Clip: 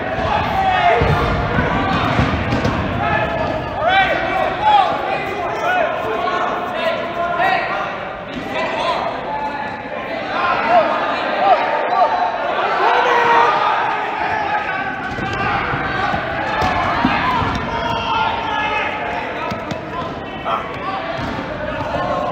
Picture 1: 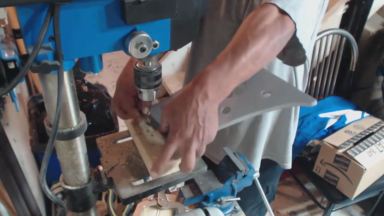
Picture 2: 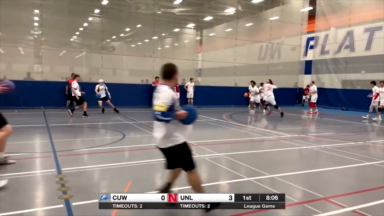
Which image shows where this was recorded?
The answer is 2